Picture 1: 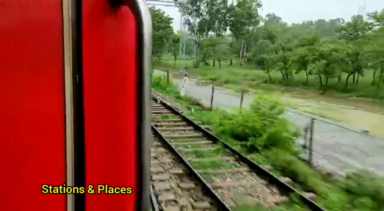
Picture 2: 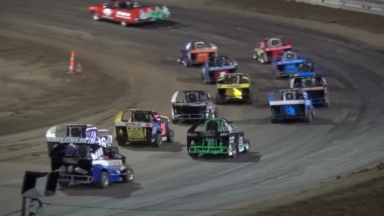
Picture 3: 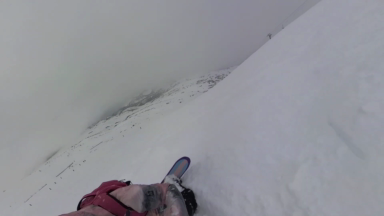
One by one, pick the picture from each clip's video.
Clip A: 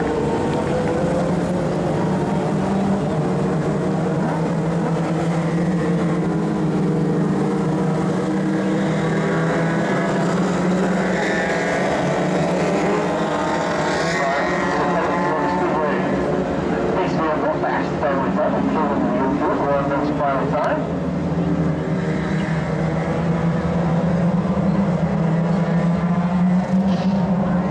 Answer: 2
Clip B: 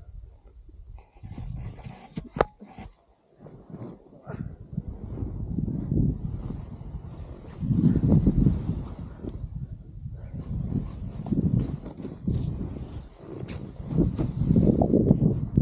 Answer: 3